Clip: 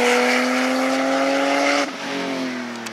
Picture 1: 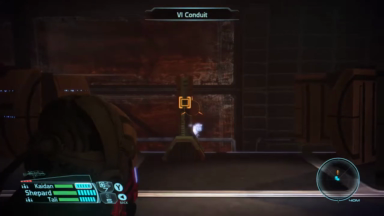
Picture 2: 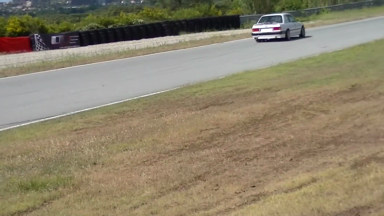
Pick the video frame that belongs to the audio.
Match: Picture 2